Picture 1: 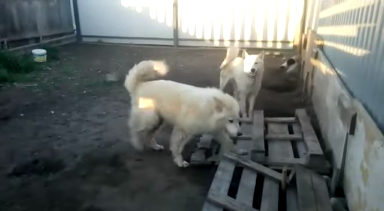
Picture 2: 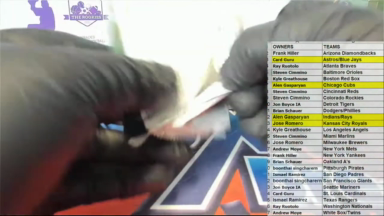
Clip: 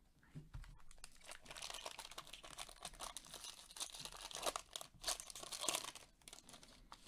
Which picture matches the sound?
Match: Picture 2